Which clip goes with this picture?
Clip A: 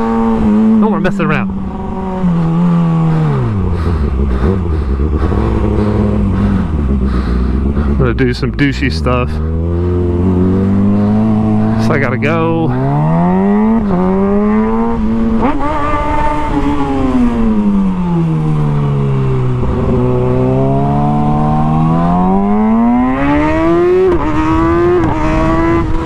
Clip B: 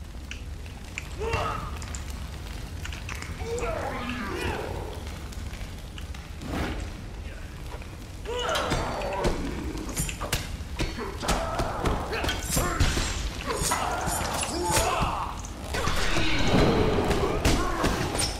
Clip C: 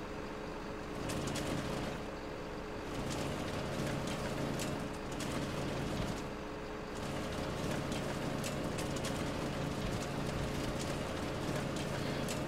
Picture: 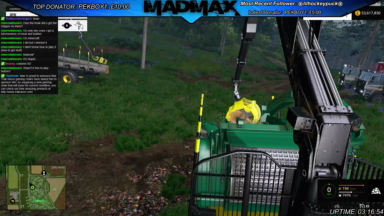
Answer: C